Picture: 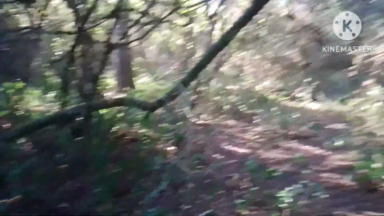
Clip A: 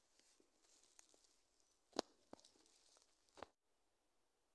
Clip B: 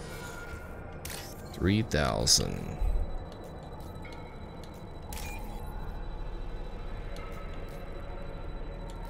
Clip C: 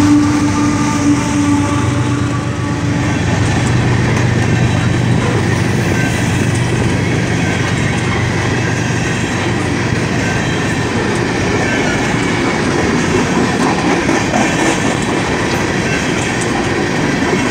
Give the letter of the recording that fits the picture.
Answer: A